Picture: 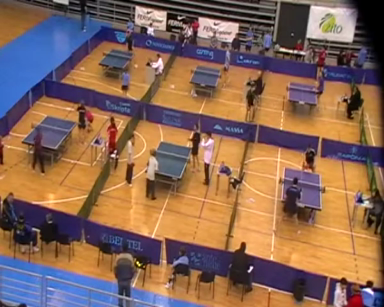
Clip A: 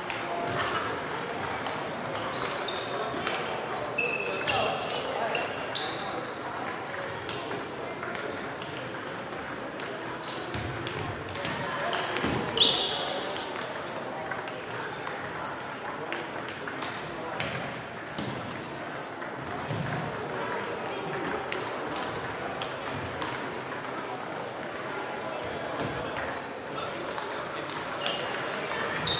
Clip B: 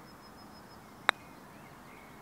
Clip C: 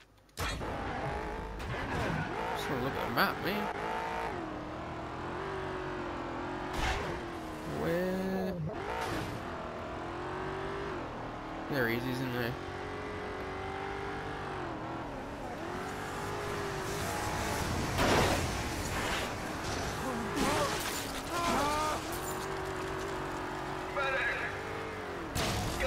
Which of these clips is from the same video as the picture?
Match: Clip A